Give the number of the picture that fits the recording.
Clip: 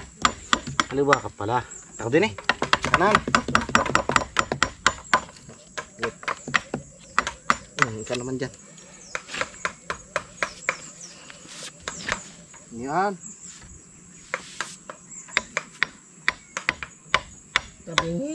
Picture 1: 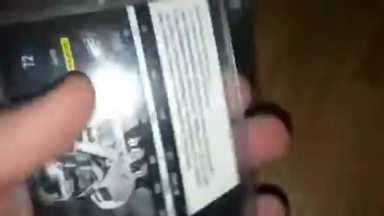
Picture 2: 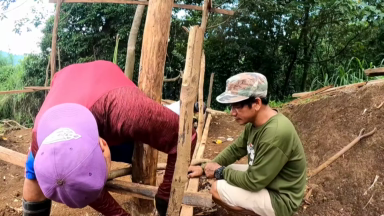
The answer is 2